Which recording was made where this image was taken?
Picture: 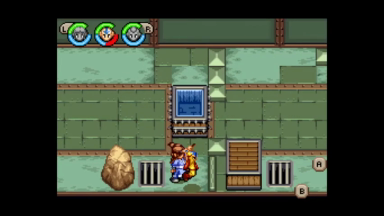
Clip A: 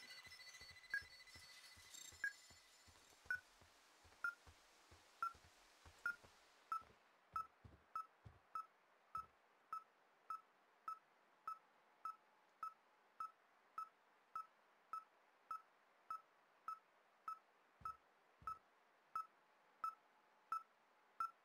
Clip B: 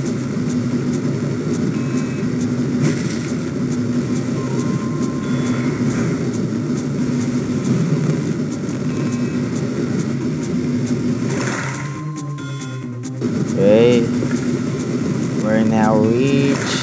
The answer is B